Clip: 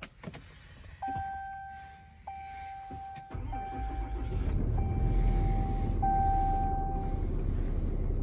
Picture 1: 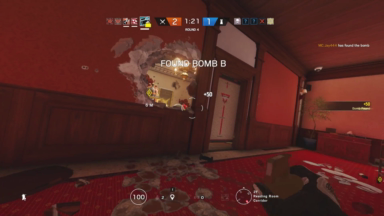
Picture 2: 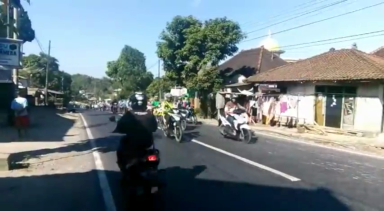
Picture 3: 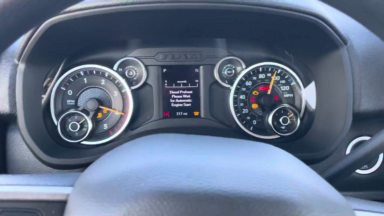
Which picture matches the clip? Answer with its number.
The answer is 3